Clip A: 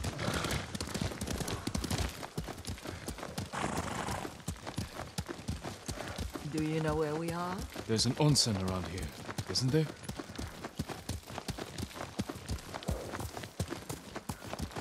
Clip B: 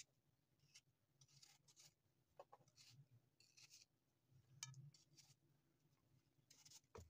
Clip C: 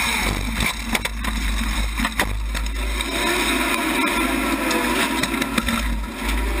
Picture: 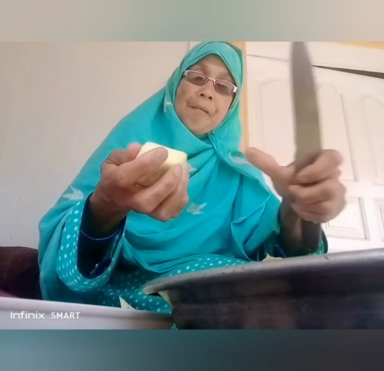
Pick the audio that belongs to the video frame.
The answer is B